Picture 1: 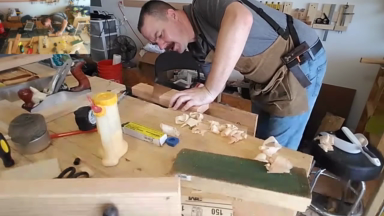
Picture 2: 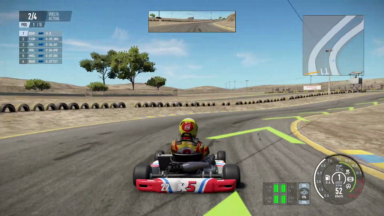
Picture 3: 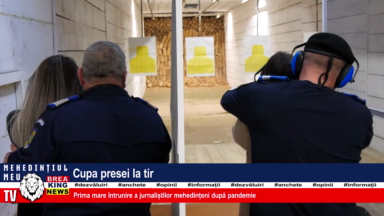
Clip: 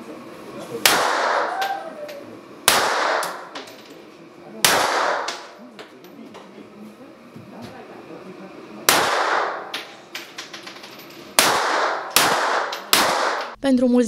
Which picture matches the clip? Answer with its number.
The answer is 3